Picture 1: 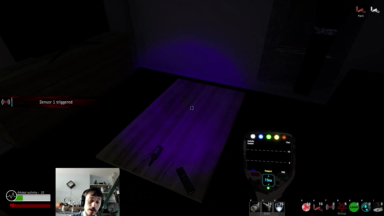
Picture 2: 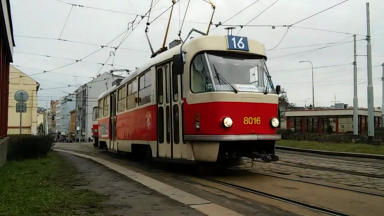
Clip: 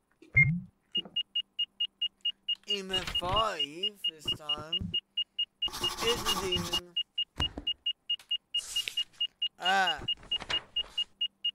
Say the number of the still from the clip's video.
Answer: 1